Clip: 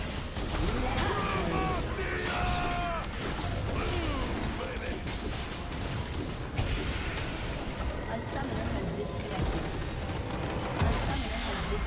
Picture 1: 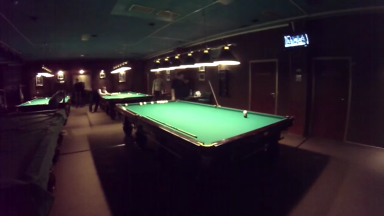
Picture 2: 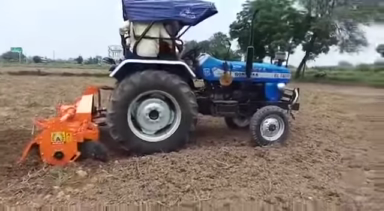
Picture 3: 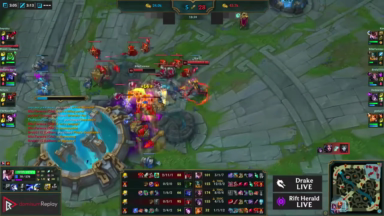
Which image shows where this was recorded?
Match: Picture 3